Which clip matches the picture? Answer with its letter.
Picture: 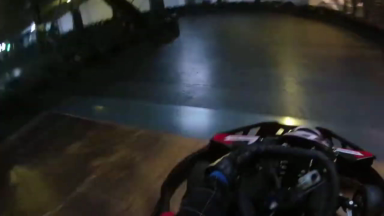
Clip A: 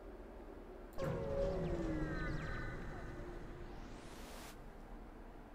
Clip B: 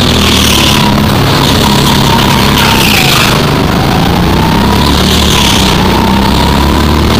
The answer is B